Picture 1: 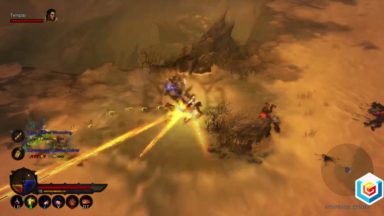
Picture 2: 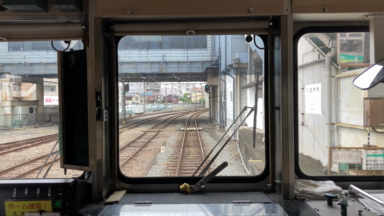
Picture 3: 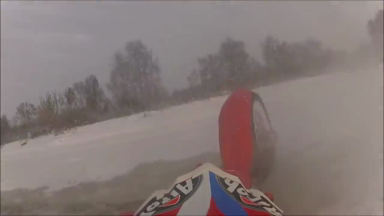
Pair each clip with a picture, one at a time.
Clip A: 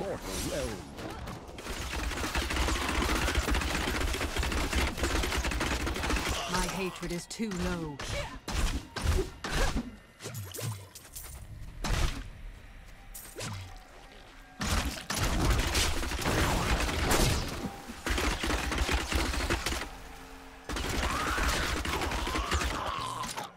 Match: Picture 1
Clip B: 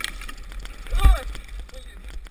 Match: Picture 3